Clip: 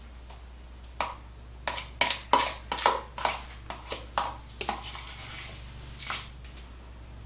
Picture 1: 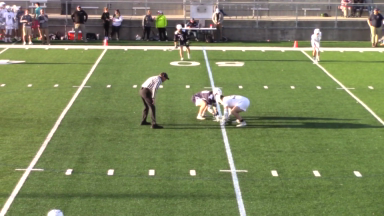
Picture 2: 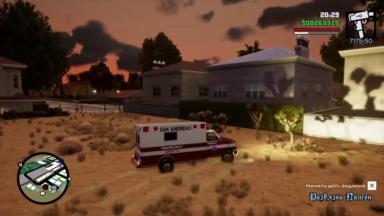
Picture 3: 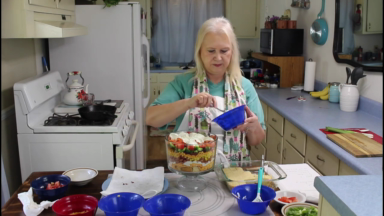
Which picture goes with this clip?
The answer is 3